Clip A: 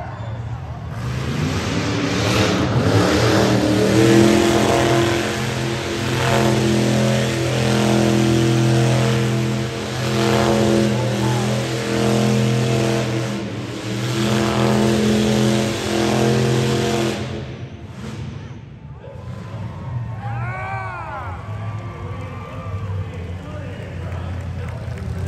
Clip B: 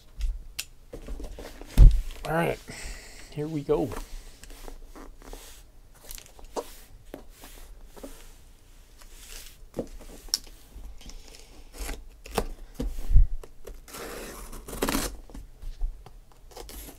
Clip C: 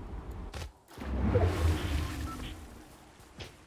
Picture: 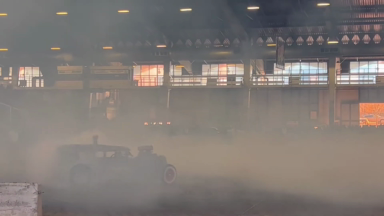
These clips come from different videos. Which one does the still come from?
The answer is A